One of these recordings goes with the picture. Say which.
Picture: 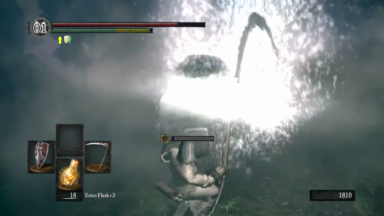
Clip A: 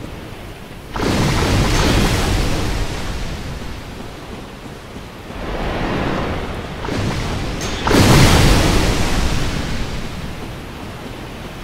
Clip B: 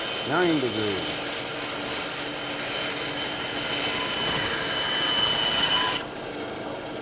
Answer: A